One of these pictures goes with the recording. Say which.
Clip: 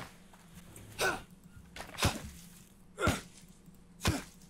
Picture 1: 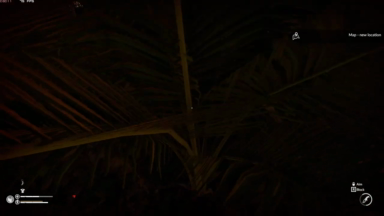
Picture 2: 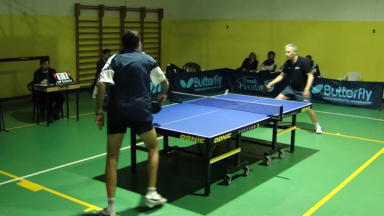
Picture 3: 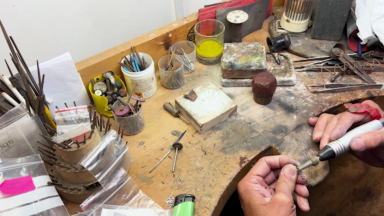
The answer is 1